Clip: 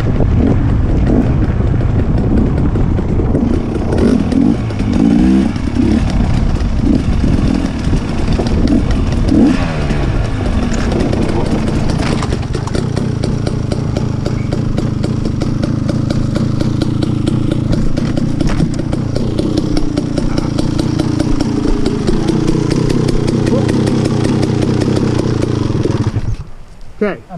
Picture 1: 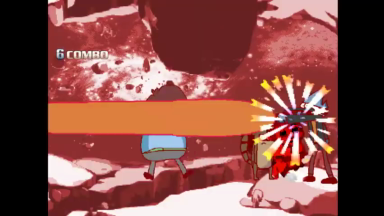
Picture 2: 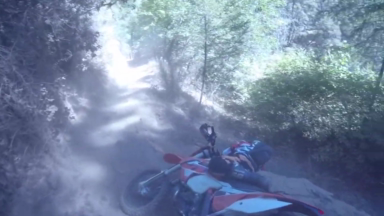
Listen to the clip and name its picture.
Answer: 2